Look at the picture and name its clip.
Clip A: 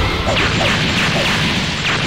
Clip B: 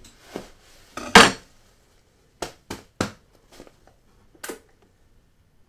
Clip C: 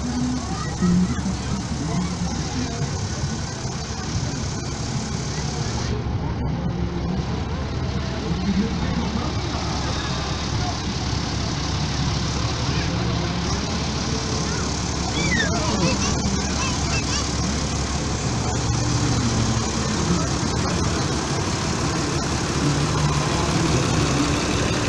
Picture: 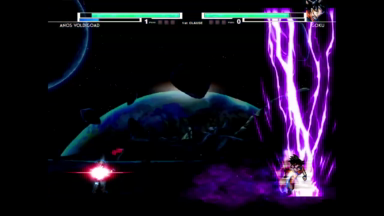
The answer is A